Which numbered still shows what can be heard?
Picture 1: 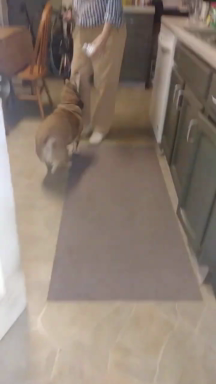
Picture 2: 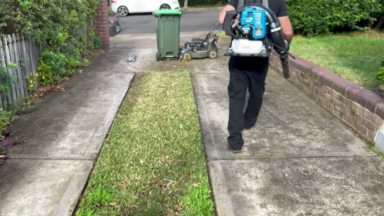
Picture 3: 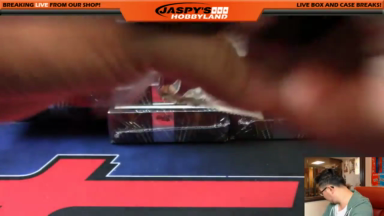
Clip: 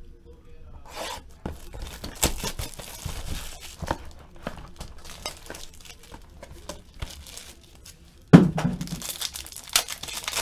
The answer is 3